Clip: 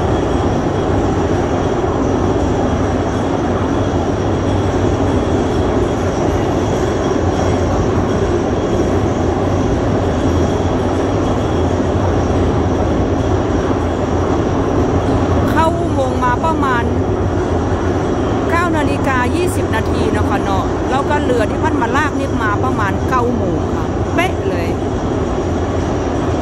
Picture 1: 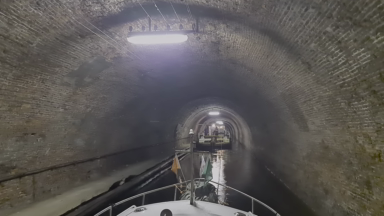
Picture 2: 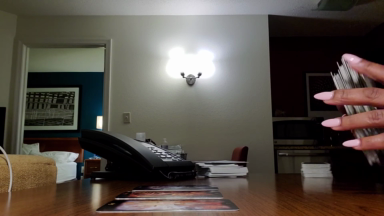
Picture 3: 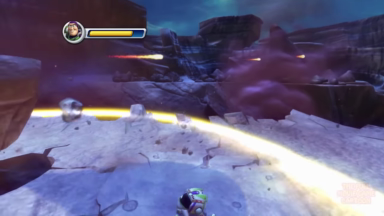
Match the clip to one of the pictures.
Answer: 1